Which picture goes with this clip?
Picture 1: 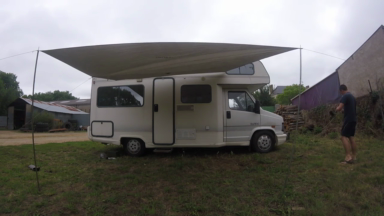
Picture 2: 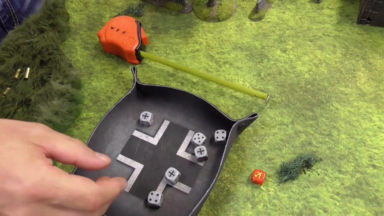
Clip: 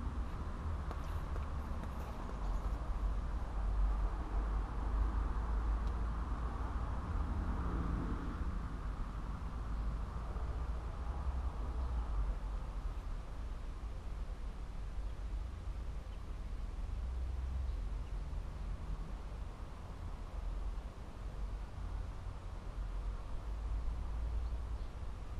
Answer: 1